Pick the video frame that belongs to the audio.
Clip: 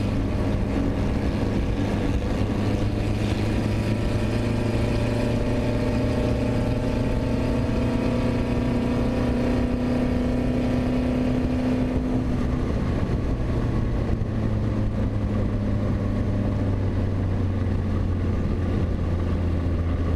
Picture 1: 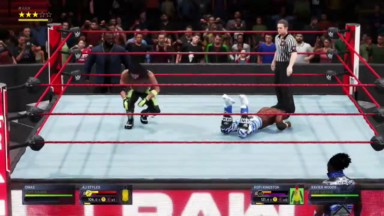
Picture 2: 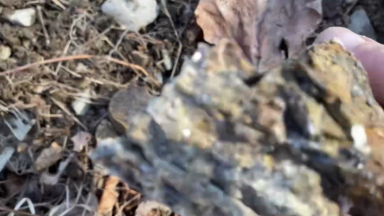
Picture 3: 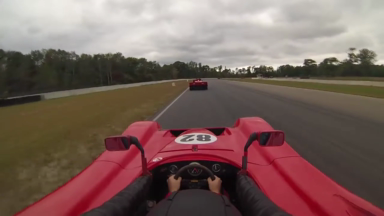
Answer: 3